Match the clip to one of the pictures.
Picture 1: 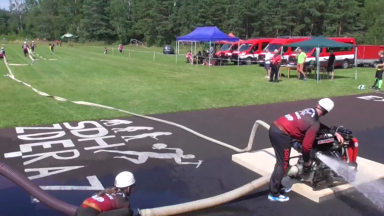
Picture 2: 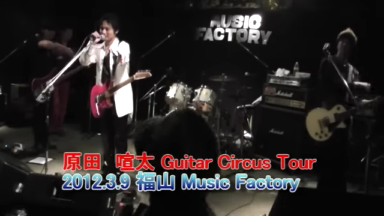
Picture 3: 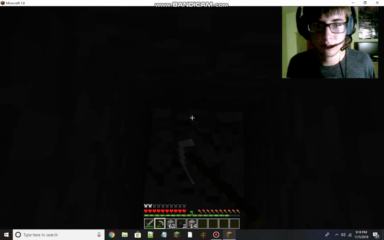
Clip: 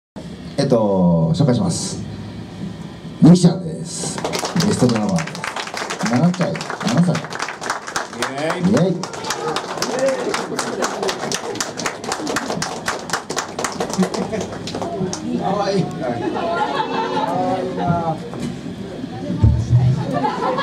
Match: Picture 2